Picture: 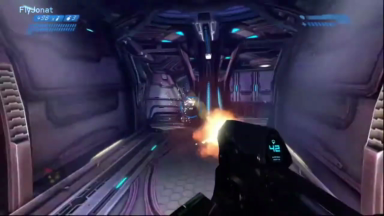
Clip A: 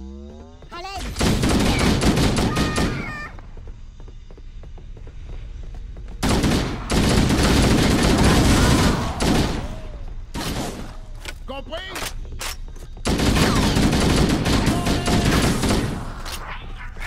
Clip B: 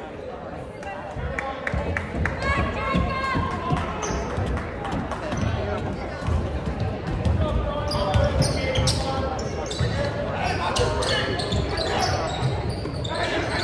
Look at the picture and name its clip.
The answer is A